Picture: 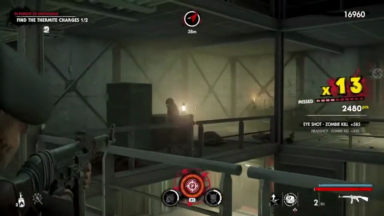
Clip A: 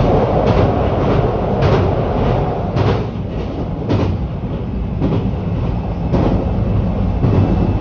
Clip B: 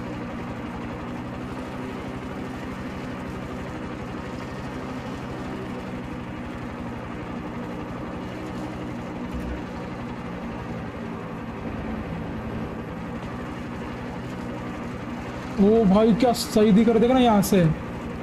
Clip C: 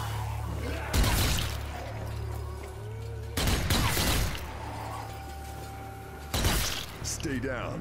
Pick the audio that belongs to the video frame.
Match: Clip C